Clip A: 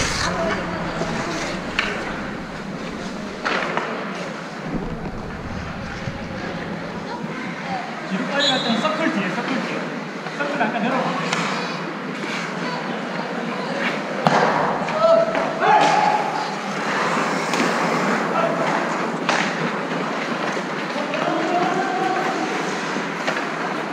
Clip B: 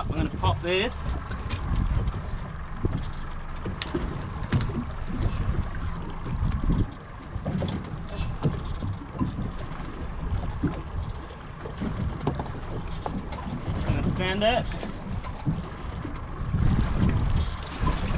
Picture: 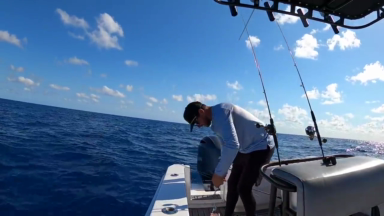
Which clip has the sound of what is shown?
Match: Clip B